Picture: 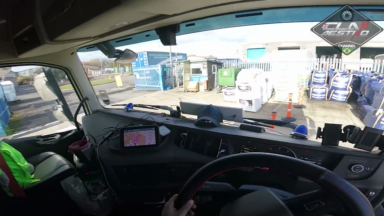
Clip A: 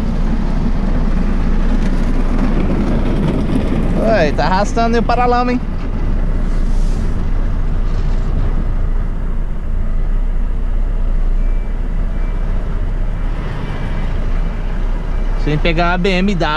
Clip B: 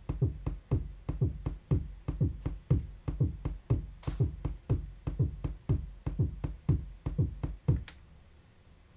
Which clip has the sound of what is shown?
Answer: A